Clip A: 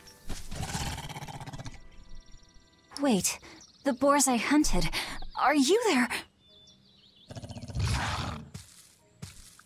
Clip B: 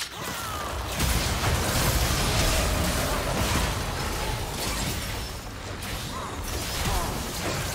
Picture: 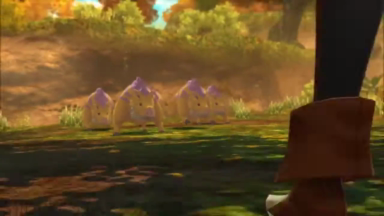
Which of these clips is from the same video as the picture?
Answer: A